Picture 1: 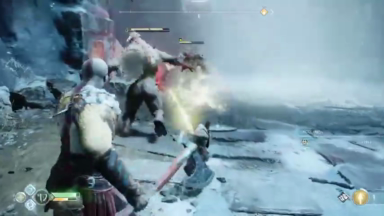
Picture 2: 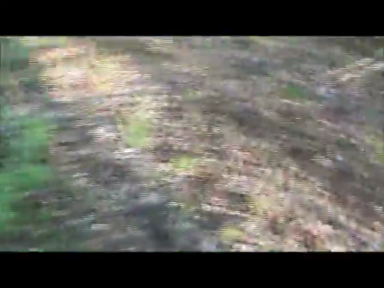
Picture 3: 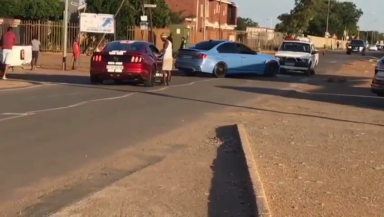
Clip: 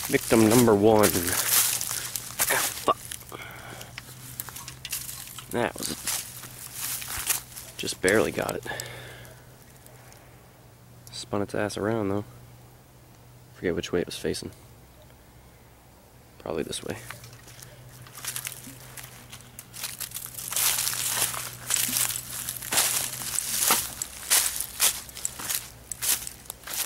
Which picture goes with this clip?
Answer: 2